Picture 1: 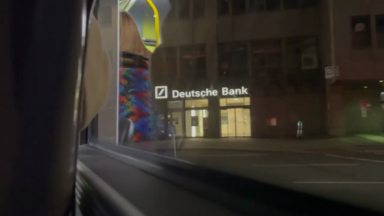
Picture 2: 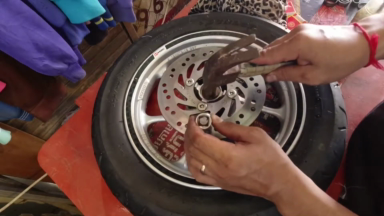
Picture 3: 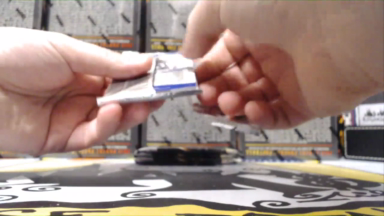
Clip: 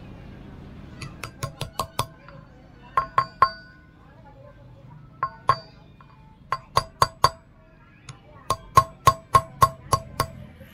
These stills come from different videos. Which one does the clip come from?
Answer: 2